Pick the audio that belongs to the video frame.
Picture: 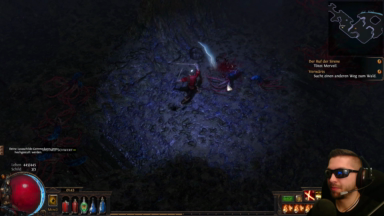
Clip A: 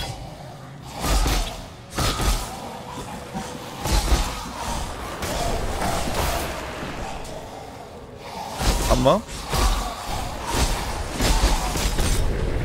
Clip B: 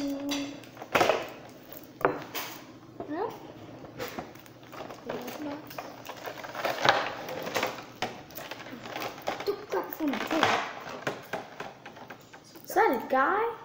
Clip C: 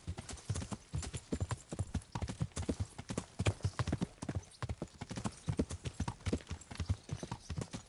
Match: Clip A